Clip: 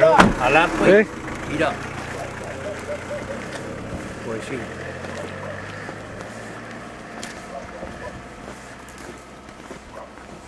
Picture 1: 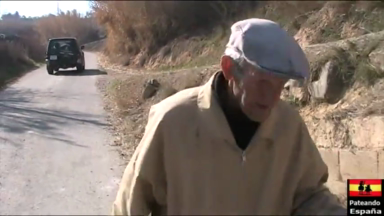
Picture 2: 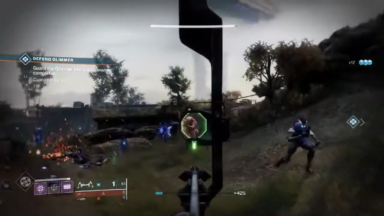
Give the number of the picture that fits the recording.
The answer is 1